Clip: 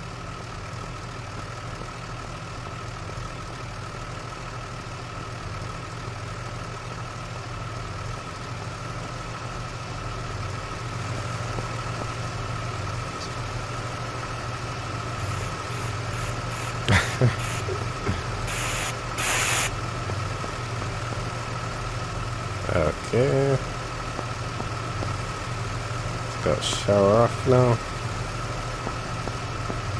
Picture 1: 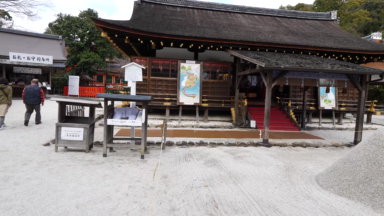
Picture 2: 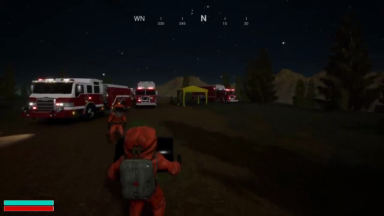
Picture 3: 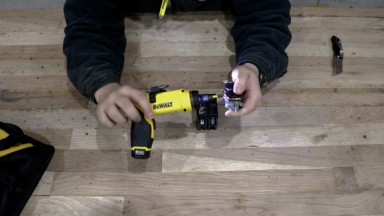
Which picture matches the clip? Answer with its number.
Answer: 2